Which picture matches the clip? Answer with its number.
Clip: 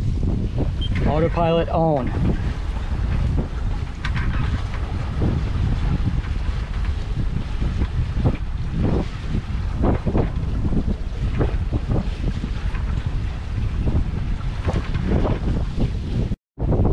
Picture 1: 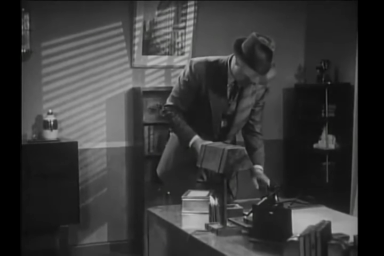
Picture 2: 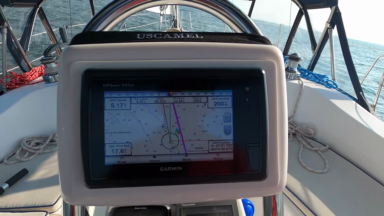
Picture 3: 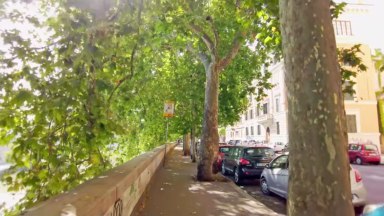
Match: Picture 2